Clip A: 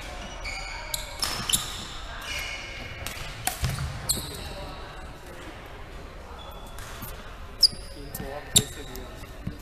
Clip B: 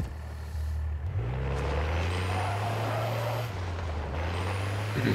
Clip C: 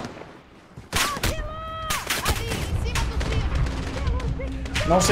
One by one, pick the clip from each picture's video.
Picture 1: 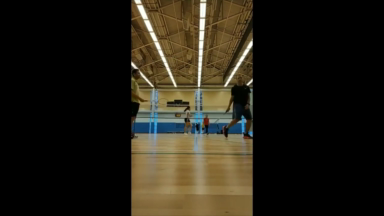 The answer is A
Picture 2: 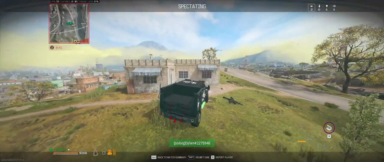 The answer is B